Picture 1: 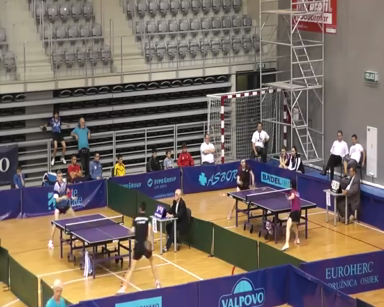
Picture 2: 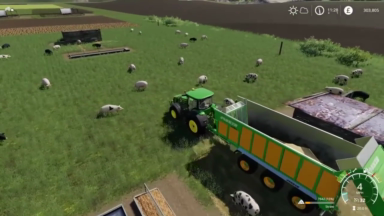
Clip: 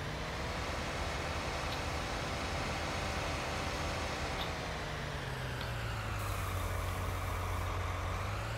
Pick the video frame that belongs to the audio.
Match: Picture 2